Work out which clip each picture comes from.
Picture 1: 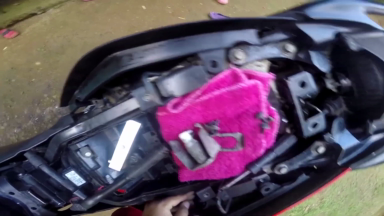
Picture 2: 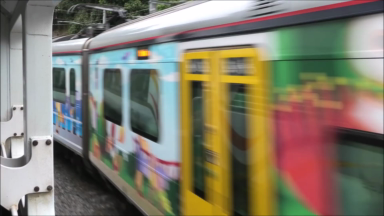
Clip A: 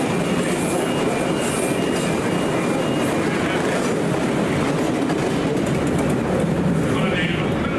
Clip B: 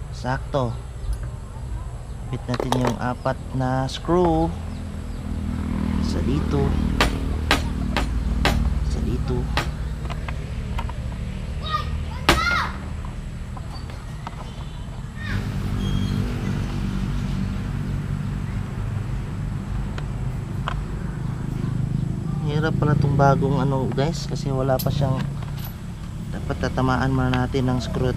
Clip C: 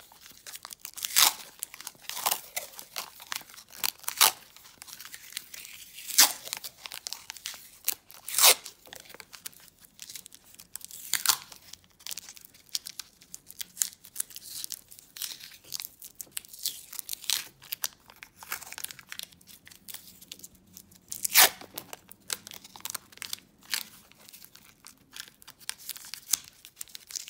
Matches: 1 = B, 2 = A